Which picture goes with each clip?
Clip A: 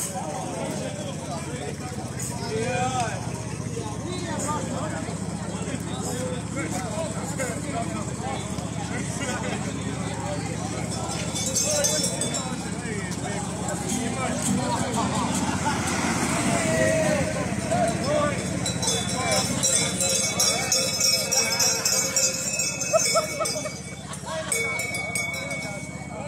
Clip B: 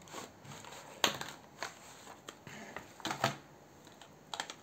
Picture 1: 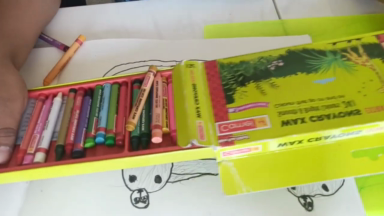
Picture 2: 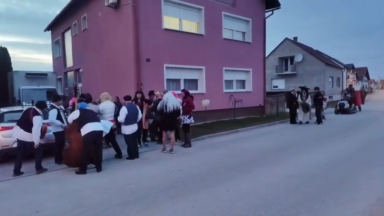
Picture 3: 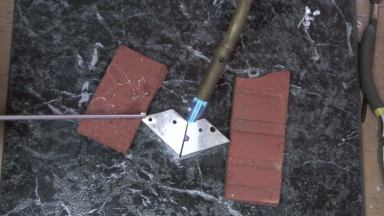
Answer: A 2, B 1